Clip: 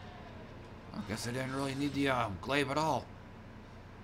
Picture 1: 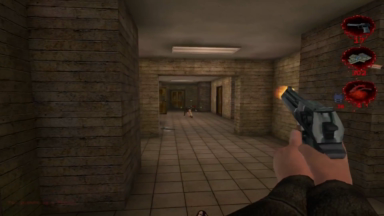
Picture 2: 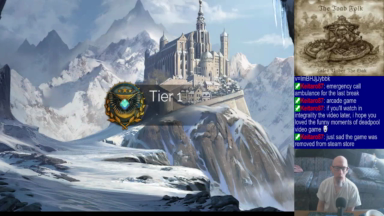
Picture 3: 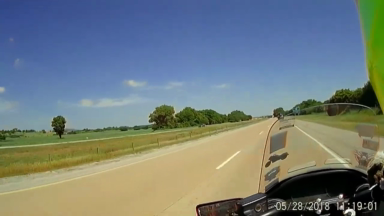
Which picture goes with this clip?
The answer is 2